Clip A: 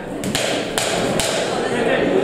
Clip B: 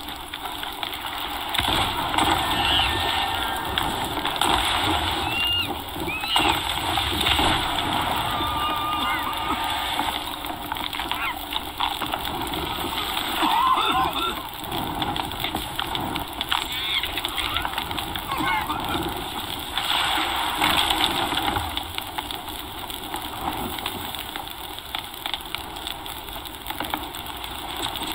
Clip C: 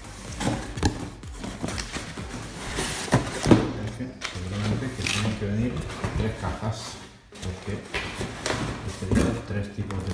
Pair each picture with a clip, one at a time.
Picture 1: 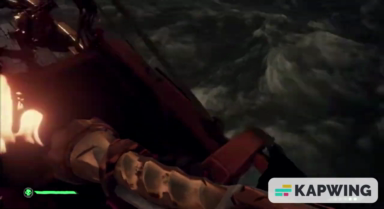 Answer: B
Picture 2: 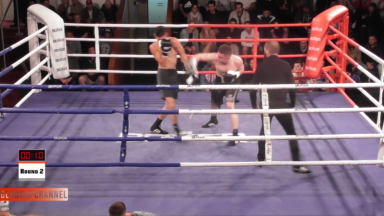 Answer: A